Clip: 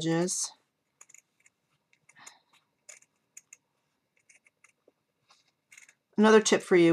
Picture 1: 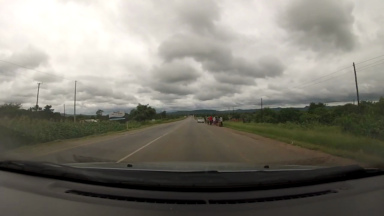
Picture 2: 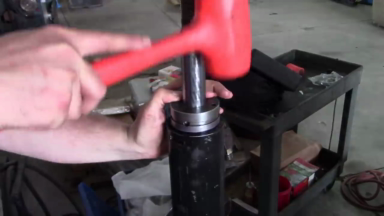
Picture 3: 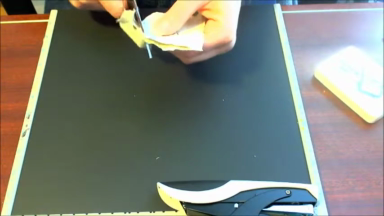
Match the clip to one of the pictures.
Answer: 3